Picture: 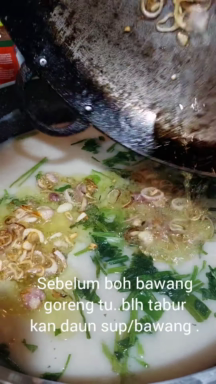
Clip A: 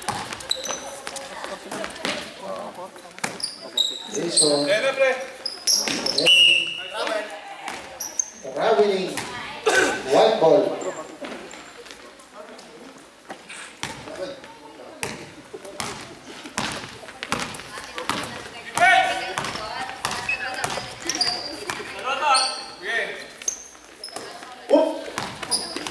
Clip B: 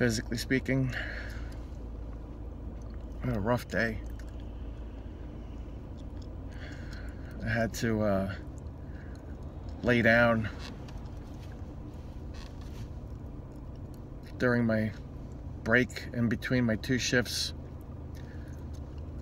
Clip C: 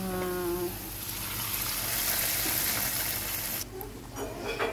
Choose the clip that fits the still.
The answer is C